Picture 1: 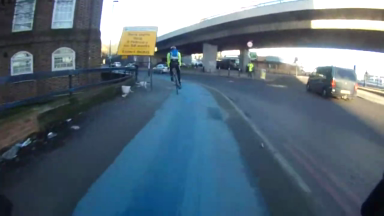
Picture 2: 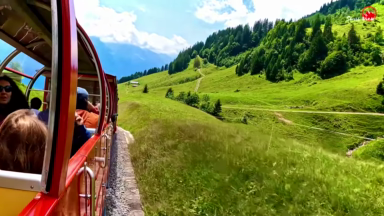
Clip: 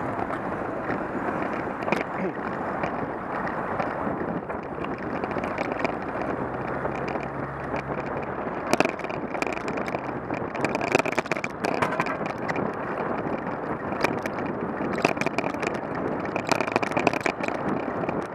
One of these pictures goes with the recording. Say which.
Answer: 1